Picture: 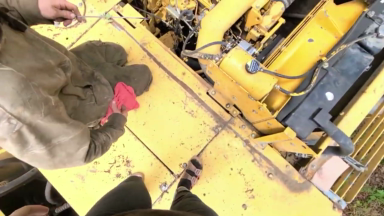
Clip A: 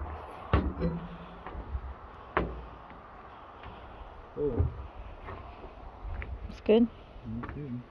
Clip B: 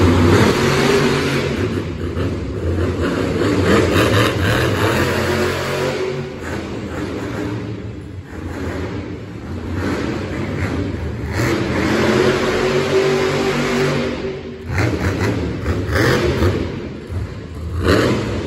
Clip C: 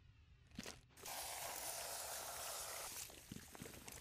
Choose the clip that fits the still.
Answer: A